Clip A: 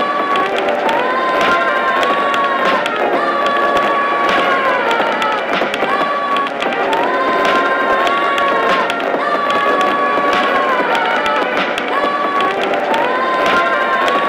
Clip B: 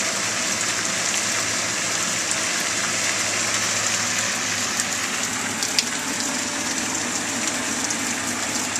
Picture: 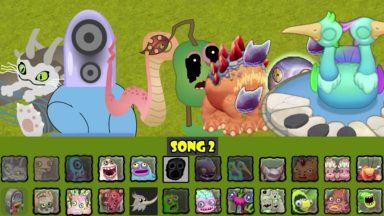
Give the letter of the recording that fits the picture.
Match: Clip A